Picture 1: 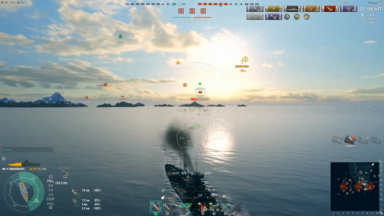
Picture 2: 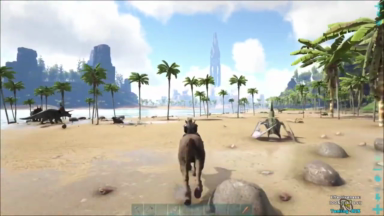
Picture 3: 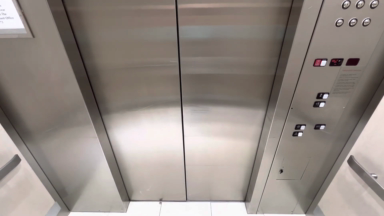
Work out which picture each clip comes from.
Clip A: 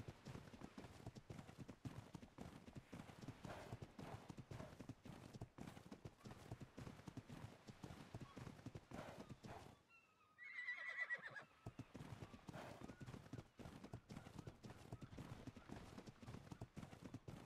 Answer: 2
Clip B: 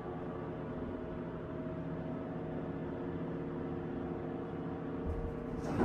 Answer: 3